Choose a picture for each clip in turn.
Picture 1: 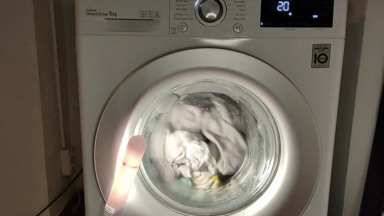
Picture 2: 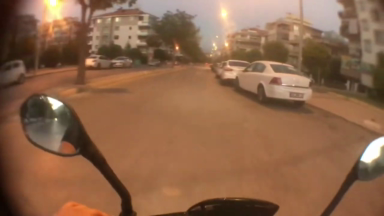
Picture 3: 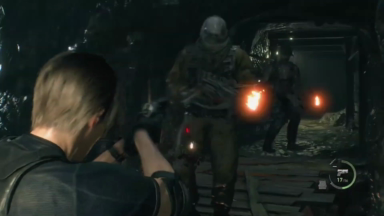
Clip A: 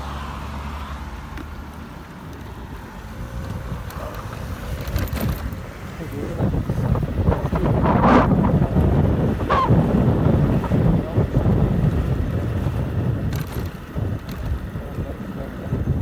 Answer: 2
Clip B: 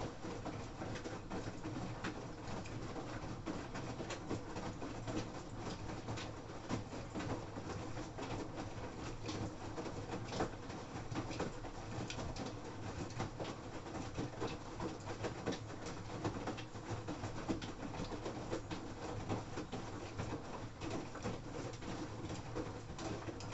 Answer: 1